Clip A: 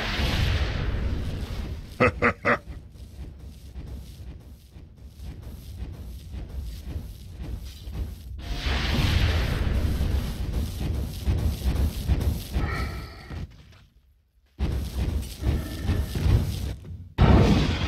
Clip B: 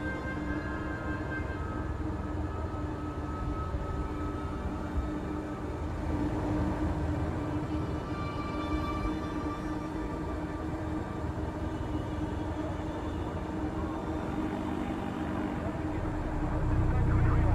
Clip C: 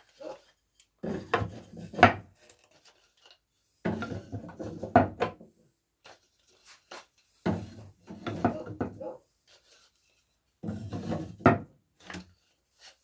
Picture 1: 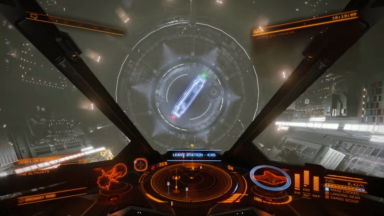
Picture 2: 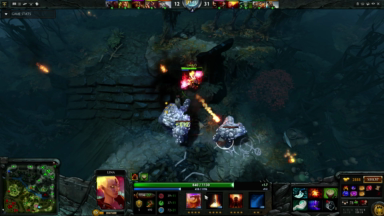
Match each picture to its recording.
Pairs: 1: B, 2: A